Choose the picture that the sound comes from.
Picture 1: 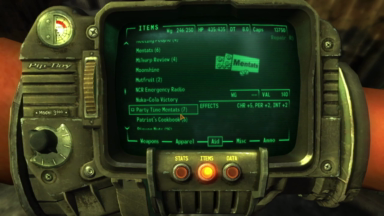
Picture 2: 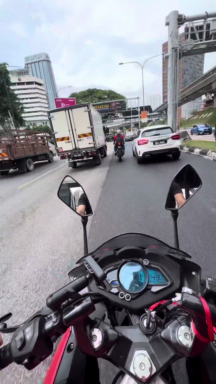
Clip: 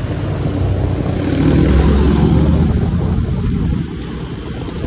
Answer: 2